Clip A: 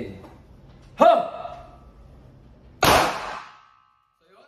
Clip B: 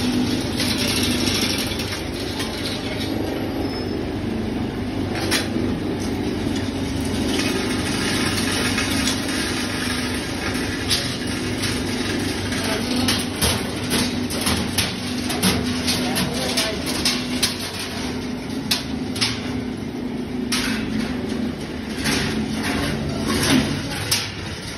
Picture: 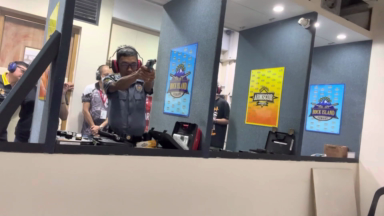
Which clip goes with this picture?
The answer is A